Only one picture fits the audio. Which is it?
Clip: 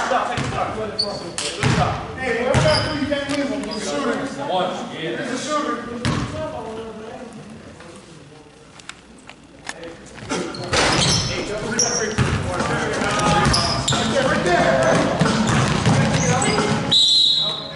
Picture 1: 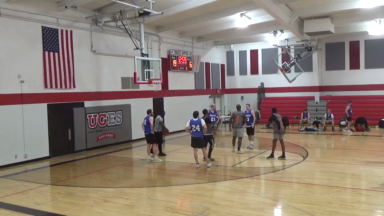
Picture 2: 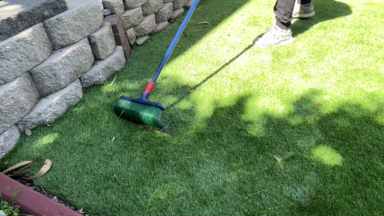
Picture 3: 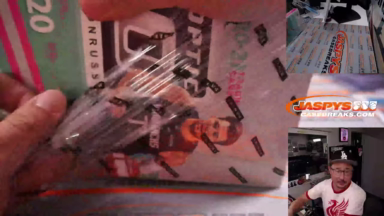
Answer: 1